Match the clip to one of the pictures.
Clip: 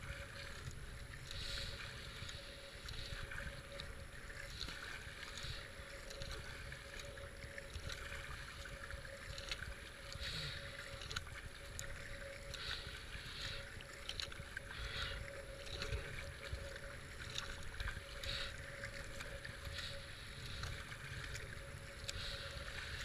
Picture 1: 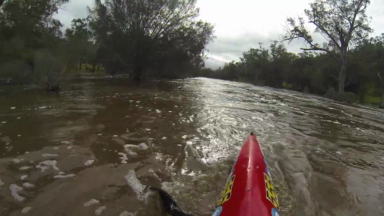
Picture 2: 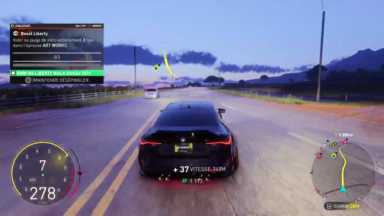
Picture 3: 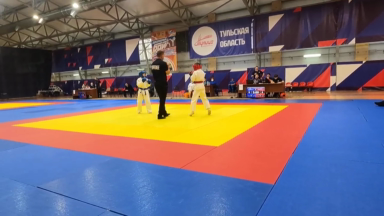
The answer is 1